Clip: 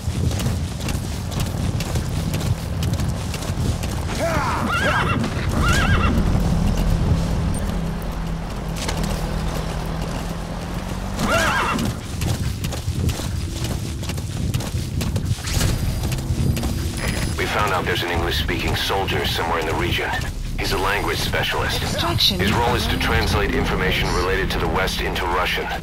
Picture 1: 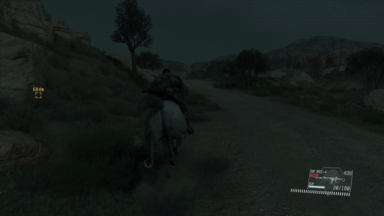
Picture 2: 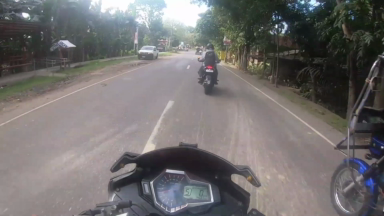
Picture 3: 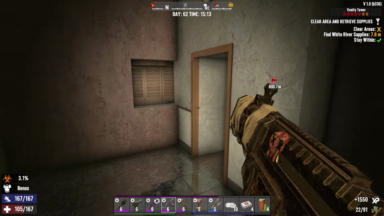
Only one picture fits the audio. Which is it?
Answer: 1